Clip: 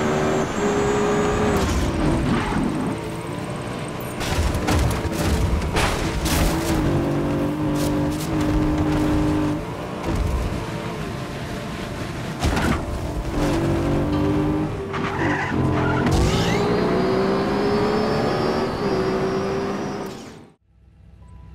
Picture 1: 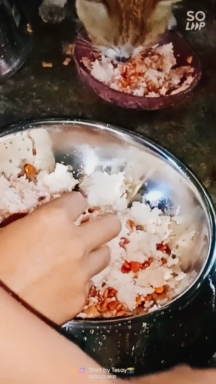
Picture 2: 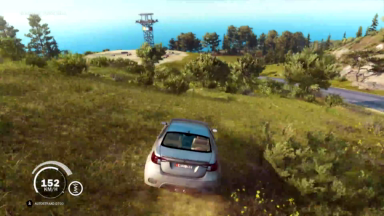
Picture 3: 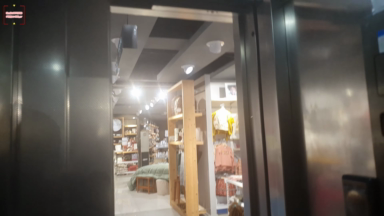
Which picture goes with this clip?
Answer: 2